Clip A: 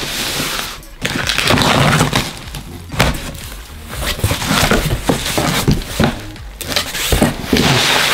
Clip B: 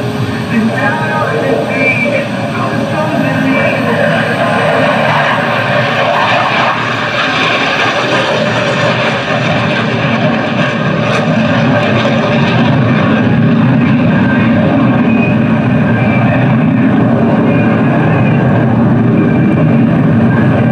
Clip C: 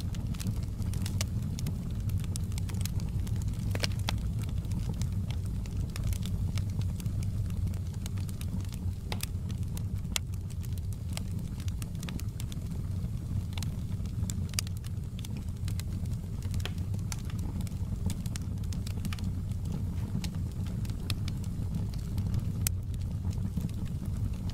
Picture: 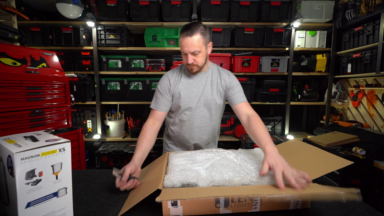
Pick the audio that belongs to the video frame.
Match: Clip A